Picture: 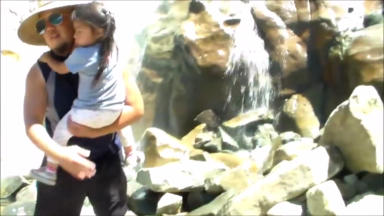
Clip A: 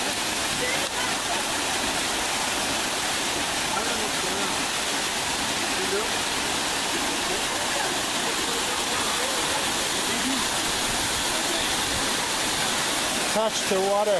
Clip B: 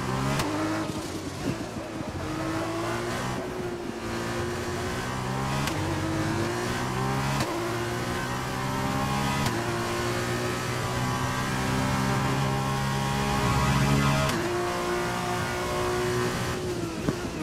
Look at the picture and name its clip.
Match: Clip A